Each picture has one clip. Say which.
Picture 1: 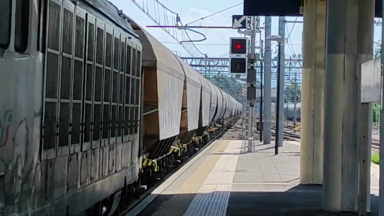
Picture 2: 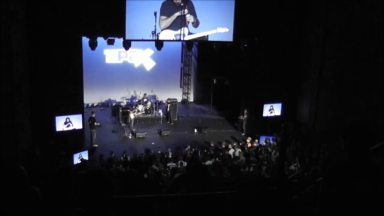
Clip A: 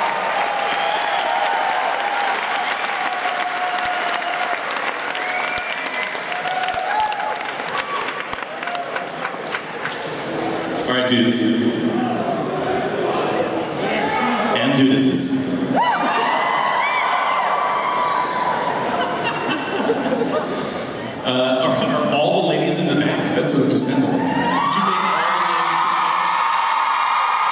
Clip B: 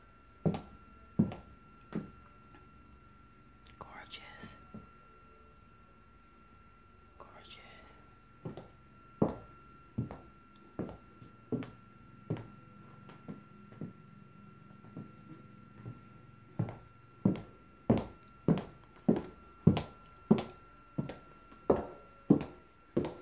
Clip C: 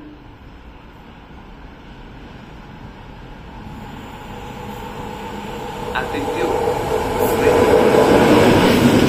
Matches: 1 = C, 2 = A